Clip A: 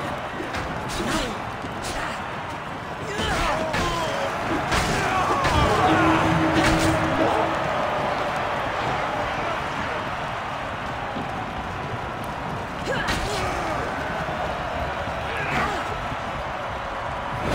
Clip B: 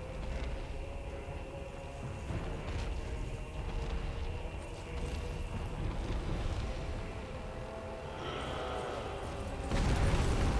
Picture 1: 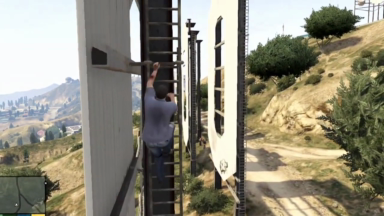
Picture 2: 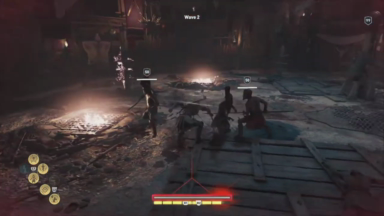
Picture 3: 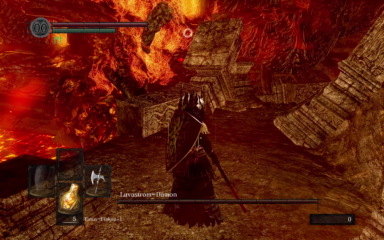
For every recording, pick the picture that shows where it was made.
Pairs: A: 2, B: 3